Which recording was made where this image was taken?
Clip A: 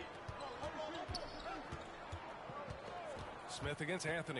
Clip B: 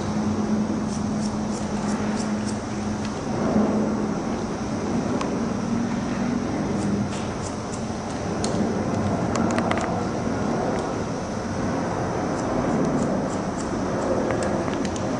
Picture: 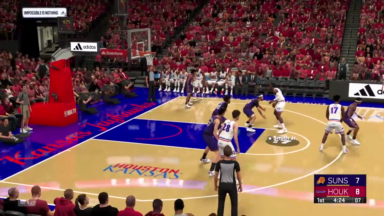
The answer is A